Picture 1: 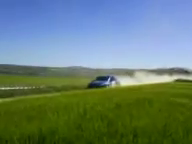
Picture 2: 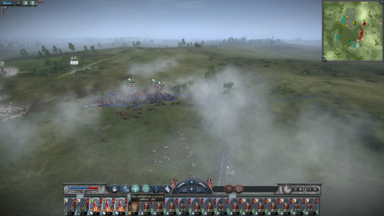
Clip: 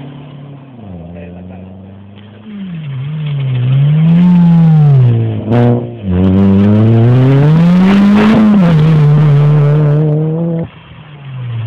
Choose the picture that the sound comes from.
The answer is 1